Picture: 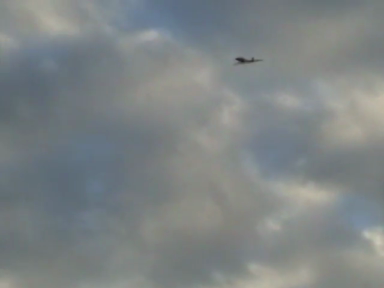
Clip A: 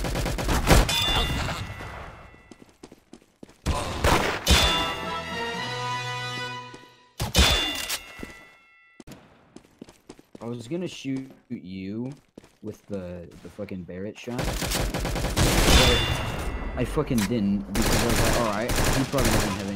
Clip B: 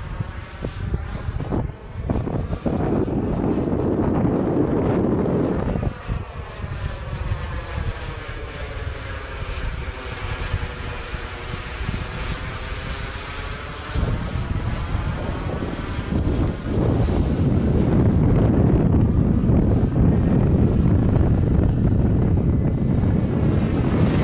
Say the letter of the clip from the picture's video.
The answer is B